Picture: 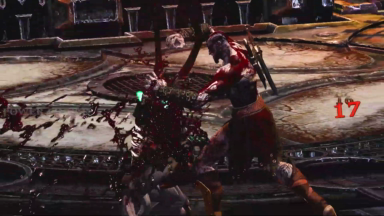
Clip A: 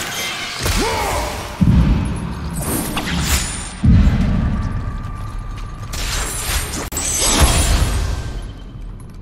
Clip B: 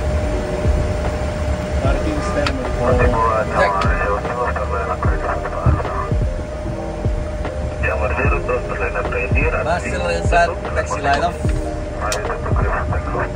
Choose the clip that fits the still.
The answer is A